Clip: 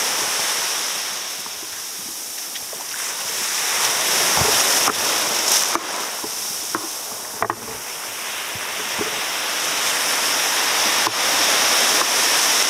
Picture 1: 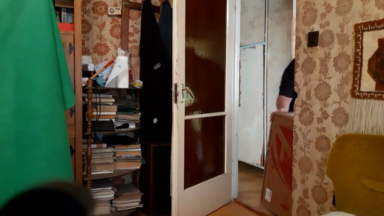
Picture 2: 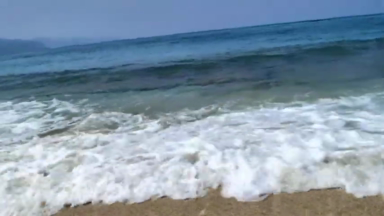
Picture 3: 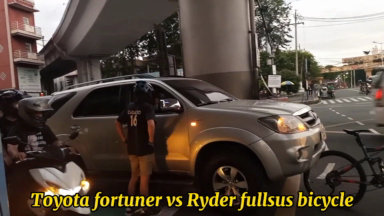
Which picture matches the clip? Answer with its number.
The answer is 2